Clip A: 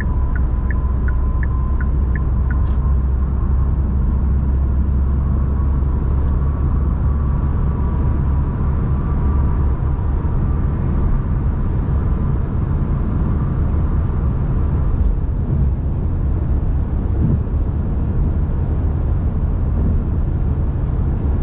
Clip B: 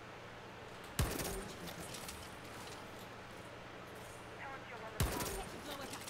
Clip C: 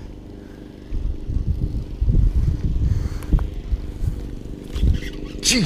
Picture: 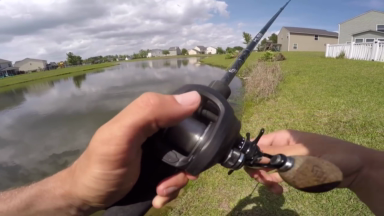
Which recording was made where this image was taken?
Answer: C